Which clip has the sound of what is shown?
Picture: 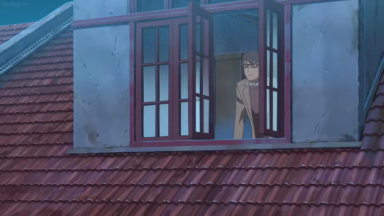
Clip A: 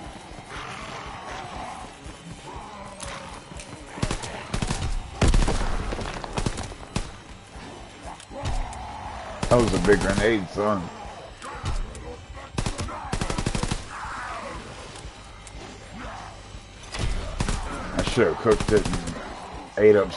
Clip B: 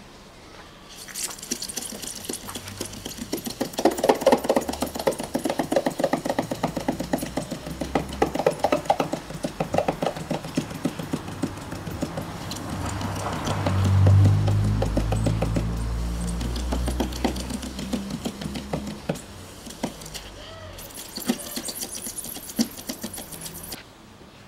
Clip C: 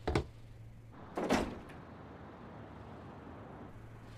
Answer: C